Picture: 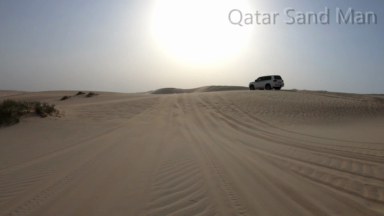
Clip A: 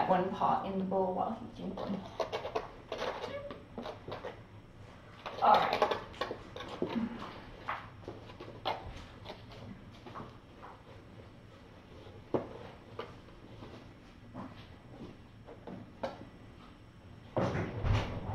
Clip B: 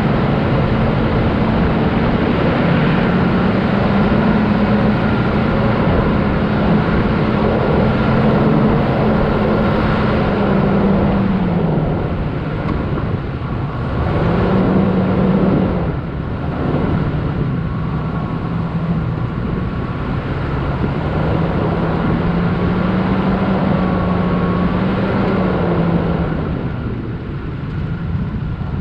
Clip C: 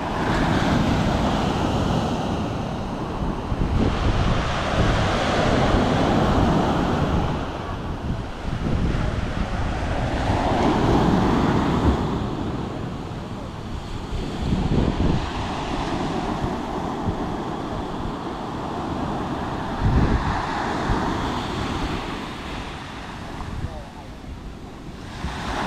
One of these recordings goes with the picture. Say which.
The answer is B